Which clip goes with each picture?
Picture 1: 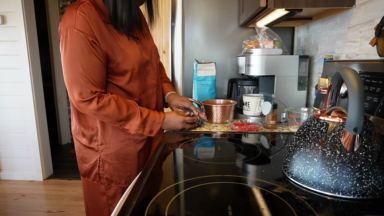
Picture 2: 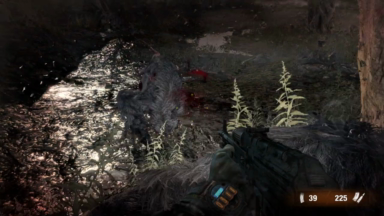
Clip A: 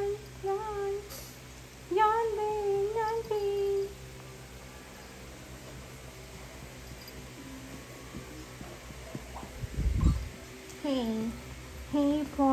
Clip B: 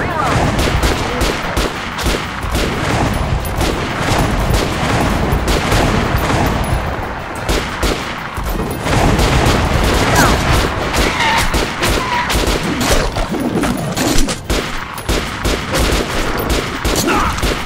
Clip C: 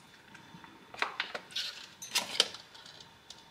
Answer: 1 C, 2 B